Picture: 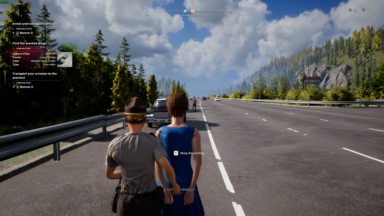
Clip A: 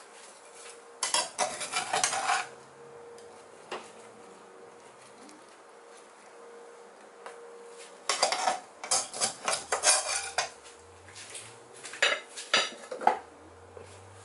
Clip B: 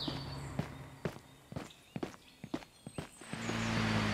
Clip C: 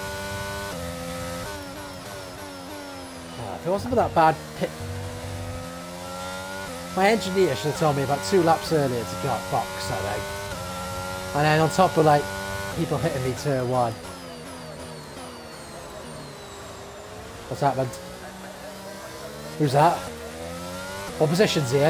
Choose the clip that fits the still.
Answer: B